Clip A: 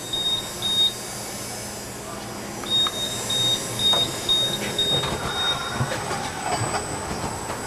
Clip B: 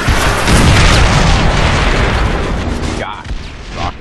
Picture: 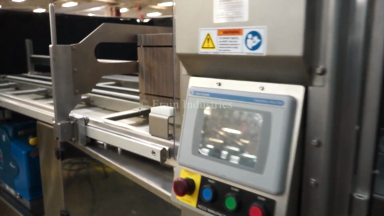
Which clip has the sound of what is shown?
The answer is A